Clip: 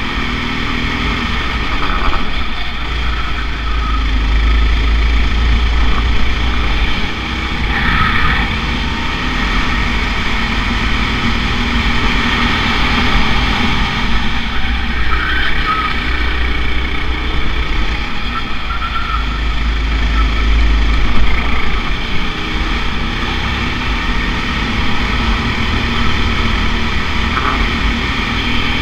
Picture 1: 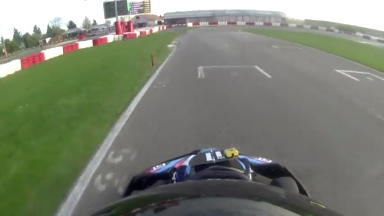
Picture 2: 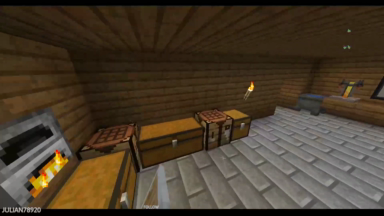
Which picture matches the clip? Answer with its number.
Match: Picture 1